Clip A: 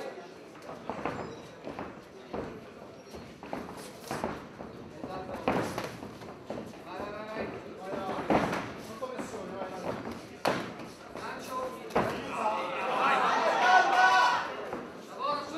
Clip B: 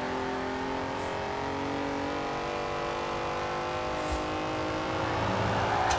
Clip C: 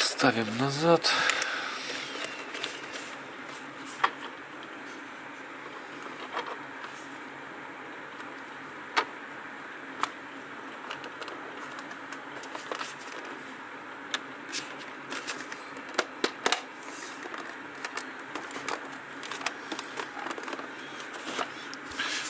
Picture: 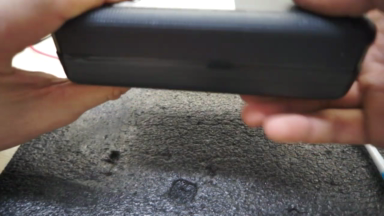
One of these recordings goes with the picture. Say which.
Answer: C